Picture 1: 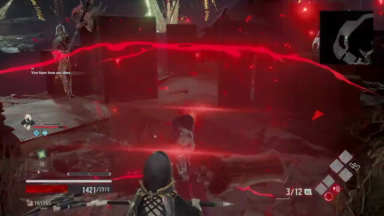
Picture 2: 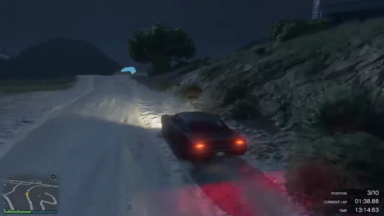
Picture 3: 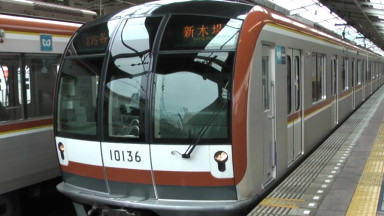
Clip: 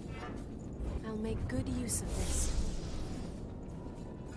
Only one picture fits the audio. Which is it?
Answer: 1